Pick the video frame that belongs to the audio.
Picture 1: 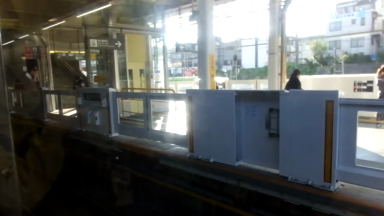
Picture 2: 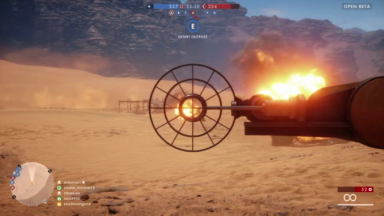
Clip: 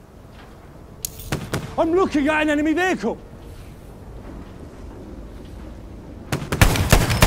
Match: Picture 2